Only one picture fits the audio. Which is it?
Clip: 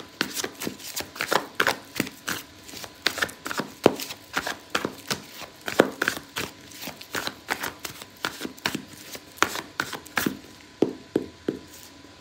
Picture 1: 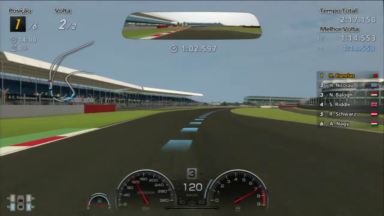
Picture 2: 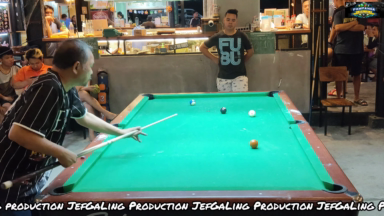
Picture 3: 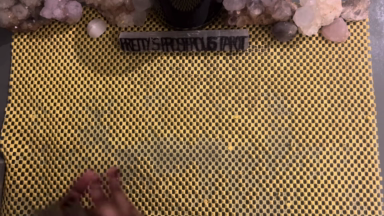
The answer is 3